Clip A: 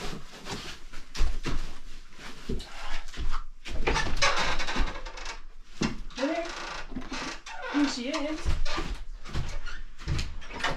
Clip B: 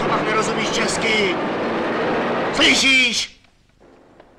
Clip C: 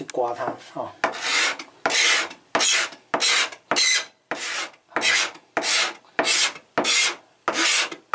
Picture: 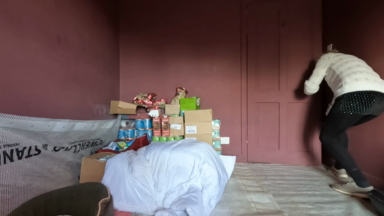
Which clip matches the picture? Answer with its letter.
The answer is A